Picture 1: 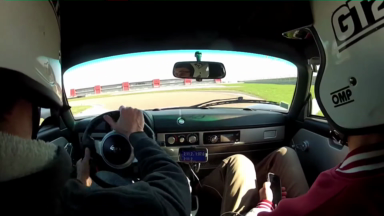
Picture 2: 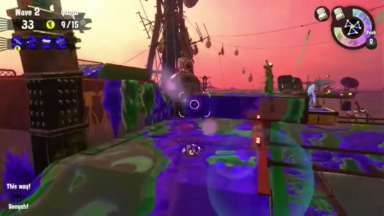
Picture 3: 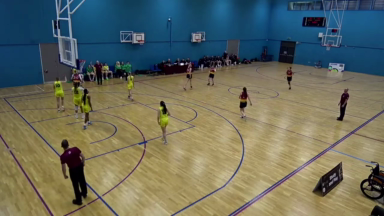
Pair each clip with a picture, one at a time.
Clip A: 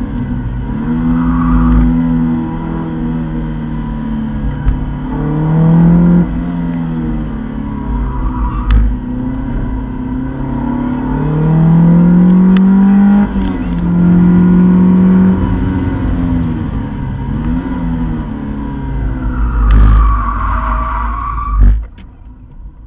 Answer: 1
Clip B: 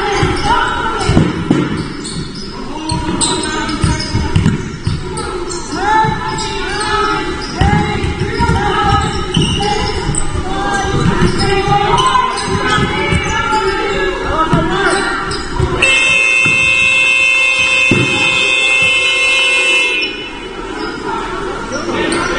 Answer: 3